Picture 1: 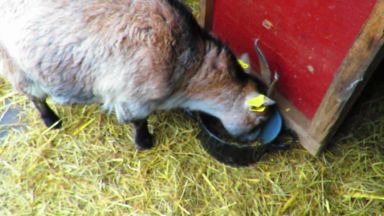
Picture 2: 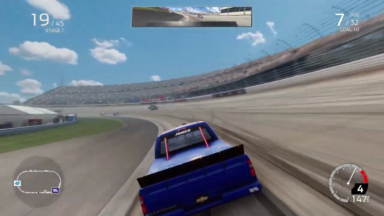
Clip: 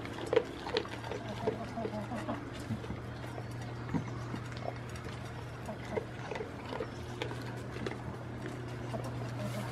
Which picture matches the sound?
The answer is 1